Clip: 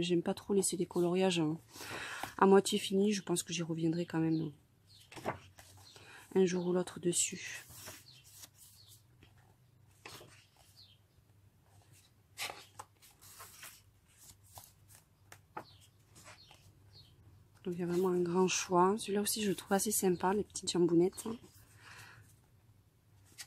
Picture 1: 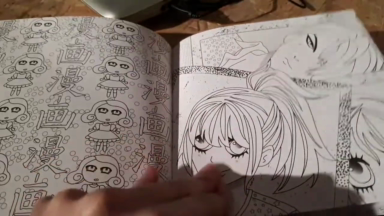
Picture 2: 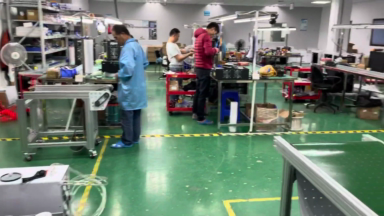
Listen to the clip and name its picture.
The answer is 1